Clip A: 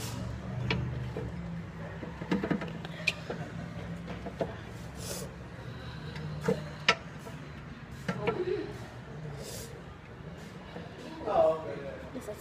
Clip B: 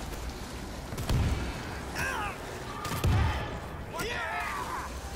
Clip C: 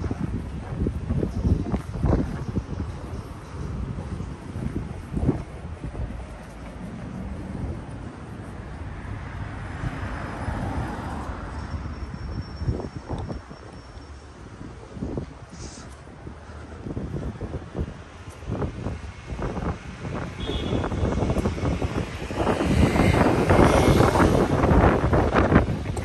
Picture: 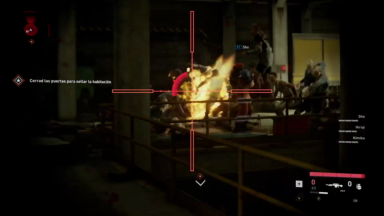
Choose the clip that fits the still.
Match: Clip B